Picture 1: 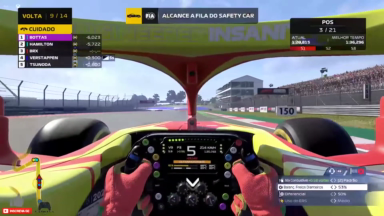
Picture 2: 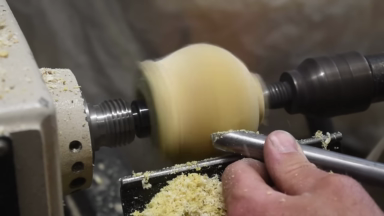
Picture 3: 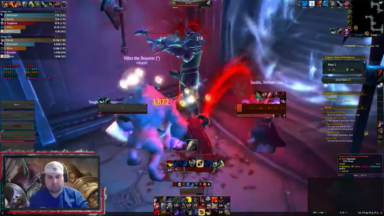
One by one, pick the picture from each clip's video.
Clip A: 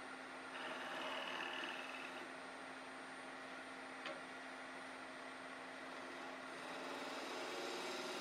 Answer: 2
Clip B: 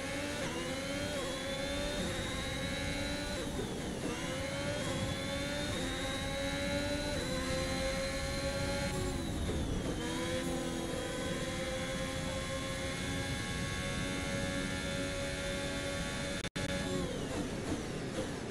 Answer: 1